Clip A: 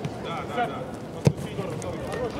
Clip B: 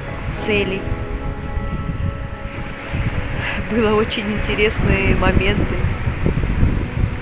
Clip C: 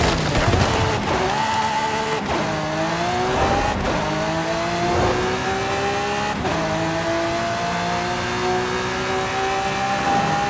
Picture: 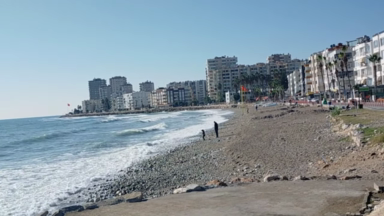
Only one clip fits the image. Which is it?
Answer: B